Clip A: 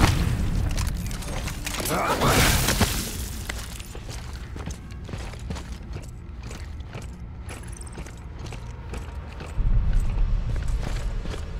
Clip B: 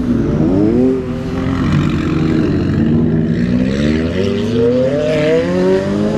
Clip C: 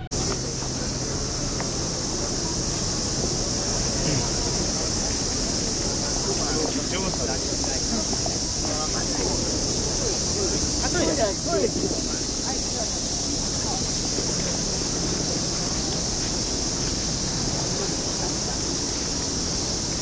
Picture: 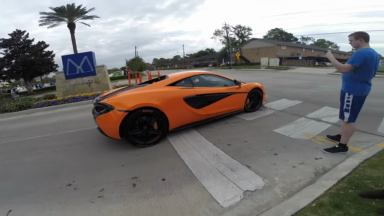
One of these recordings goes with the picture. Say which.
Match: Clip B